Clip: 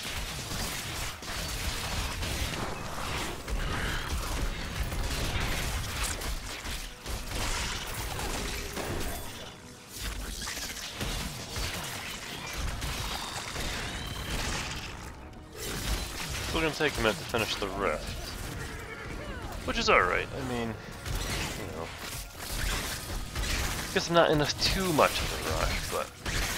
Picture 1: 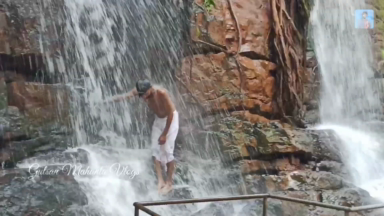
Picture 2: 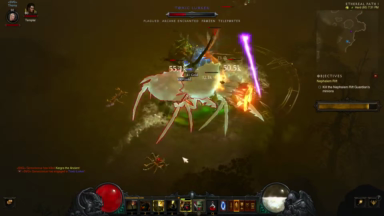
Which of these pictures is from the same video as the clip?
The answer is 2